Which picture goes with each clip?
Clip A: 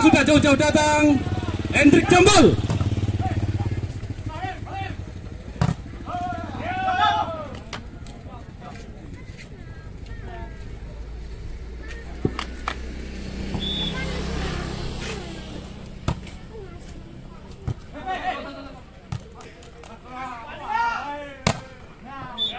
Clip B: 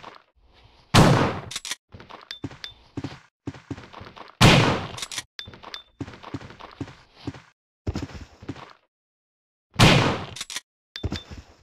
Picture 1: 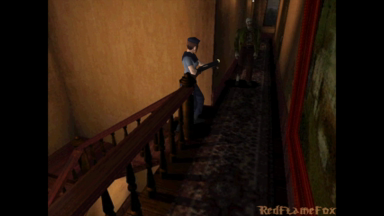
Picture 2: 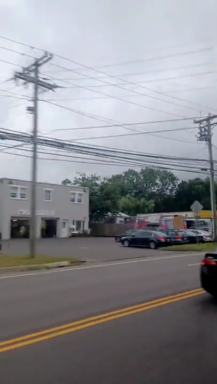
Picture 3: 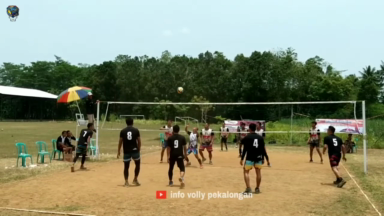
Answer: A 3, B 1